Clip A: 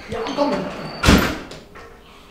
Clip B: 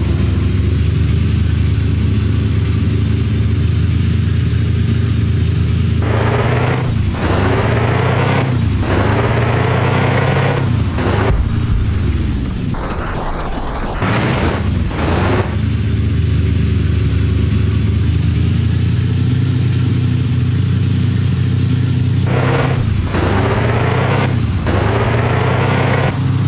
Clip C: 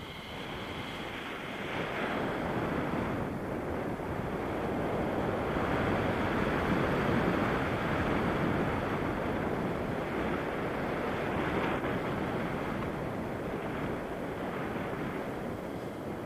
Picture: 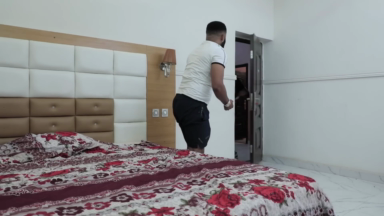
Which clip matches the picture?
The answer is A